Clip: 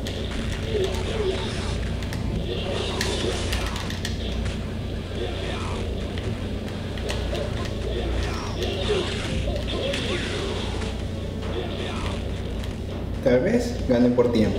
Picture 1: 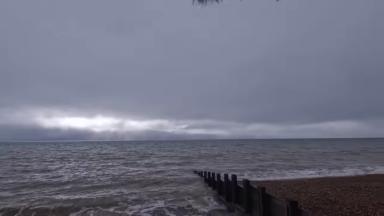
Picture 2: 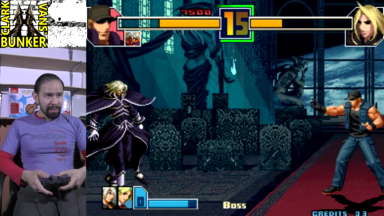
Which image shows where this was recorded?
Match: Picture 2